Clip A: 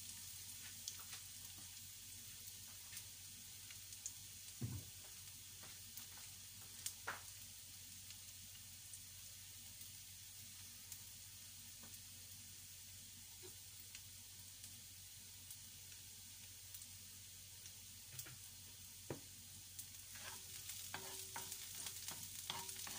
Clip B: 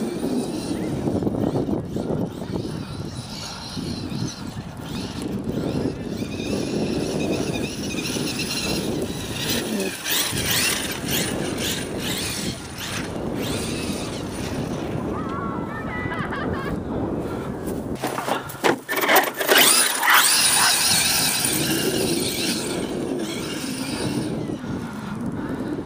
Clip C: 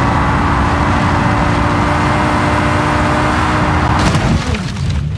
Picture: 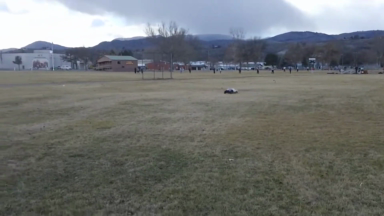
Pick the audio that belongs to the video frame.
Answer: B